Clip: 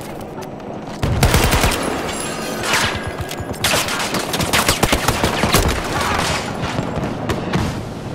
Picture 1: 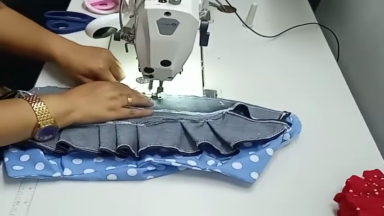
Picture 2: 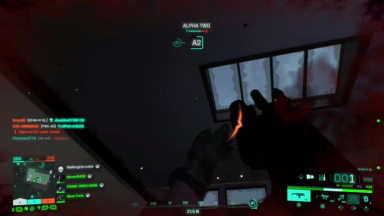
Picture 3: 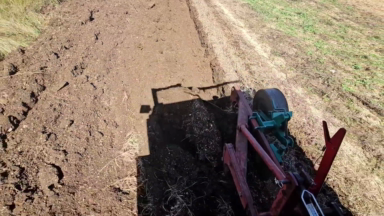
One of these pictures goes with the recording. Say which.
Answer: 2